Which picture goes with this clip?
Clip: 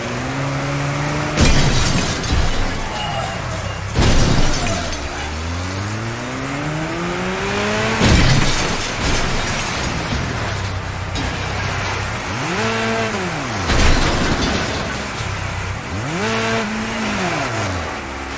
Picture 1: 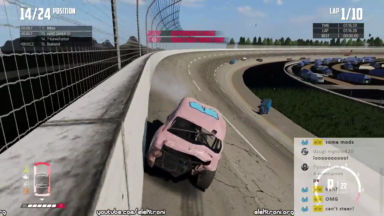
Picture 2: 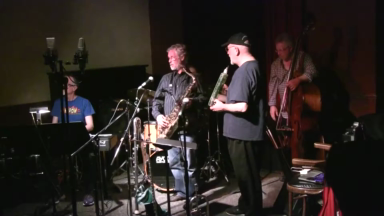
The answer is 1